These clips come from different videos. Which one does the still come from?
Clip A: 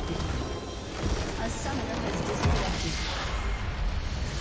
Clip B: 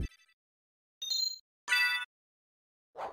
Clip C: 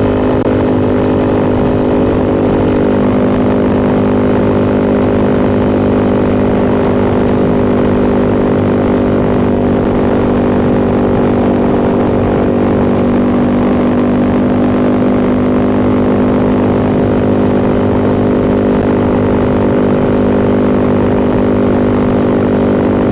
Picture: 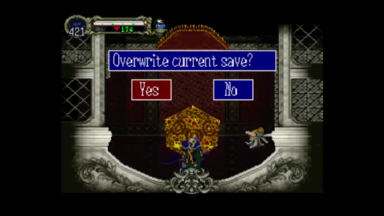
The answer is B